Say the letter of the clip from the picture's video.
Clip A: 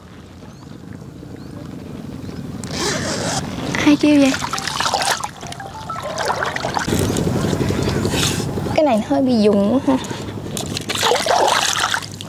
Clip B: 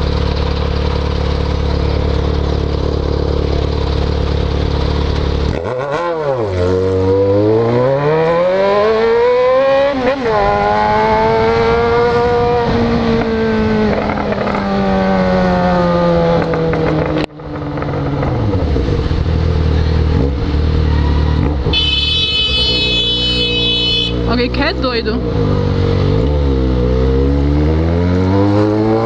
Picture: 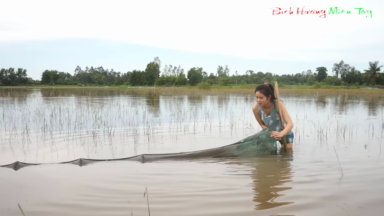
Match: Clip A